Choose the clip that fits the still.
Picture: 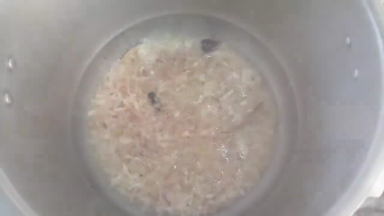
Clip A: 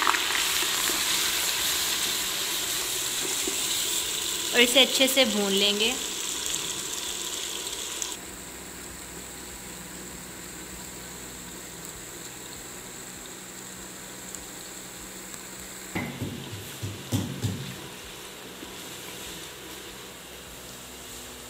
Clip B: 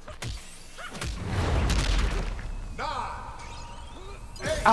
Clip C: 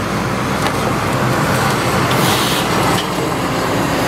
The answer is A